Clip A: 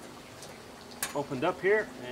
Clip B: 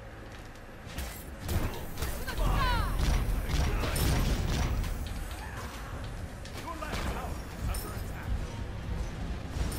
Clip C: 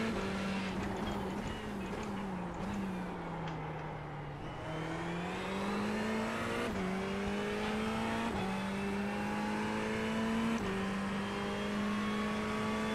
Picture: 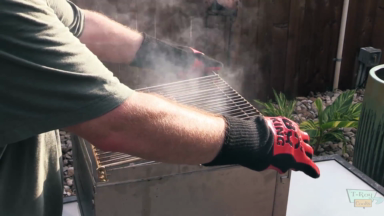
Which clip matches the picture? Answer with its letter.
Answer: A